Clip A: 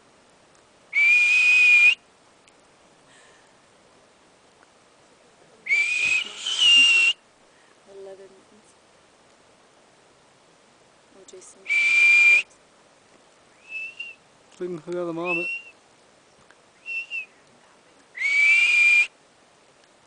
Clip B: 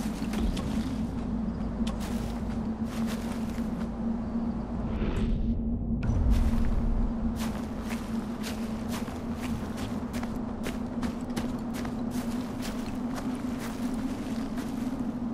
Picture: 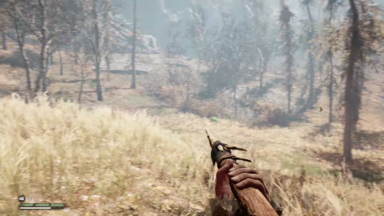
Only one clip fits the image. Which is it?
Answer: B